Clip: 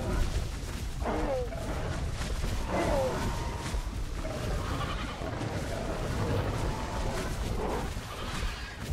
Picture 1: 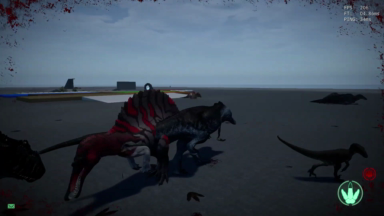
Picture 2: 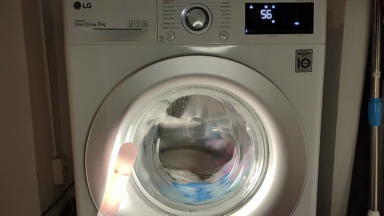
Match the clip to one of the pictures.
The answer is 1